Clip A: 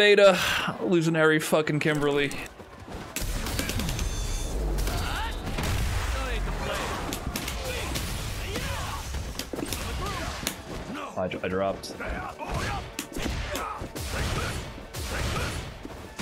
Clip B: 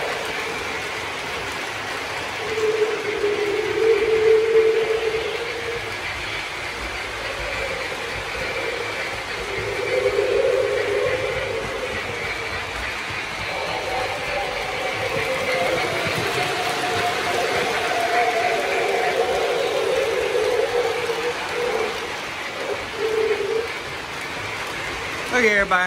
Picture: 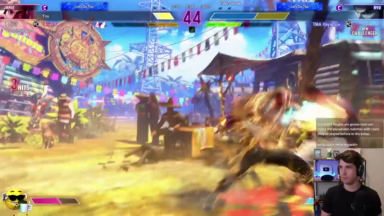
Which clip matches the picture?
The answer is A